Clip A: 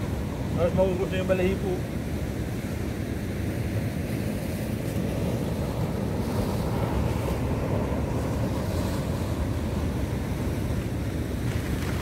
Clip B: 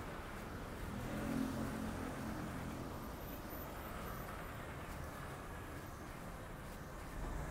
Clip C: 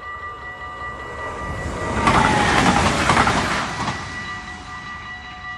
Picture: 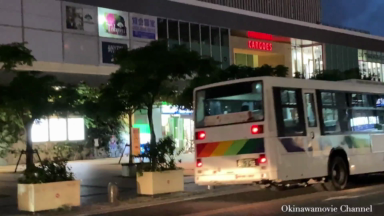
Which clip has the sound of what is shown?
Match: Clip B